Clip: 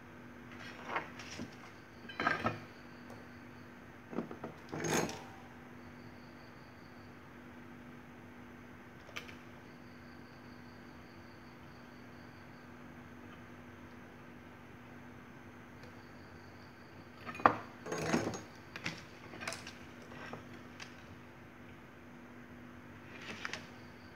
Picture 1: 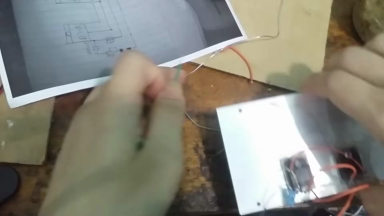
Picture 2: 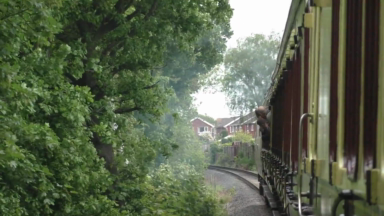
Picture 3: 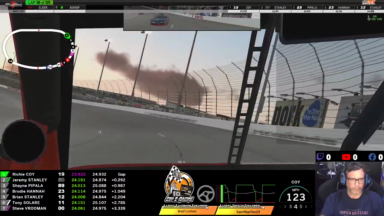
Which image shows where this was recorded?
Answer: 1